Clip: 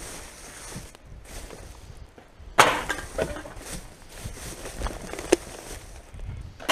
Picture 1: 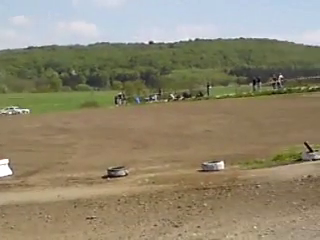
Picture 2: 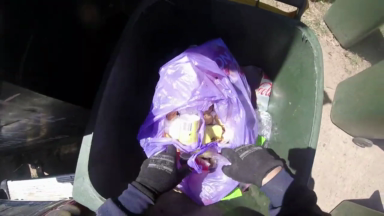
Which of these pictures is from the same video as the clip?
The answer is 2